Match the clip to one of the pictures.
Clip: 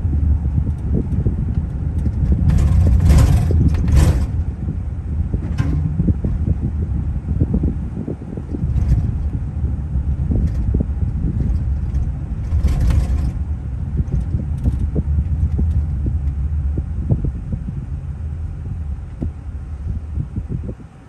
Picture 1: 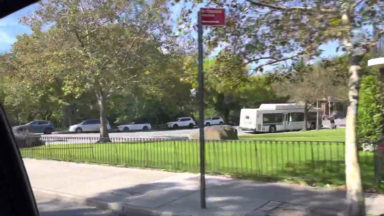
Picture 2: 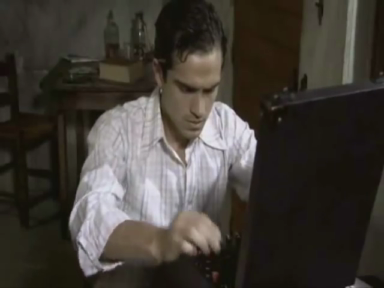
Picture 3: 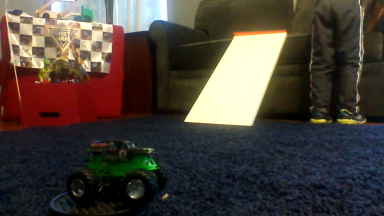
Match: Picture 1